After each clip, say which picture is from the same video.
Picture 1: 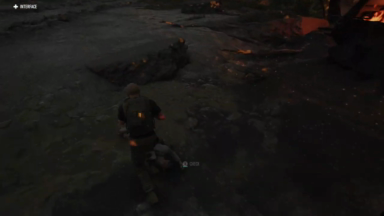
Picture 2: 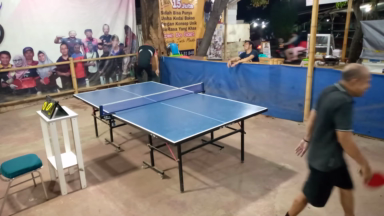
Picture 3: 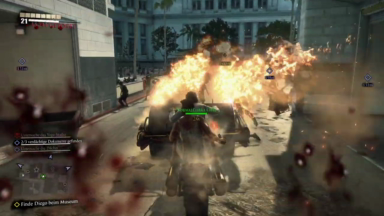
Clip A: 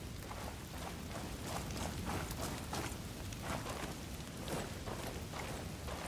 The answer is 1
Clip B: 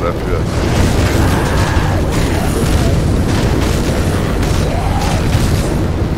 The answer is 3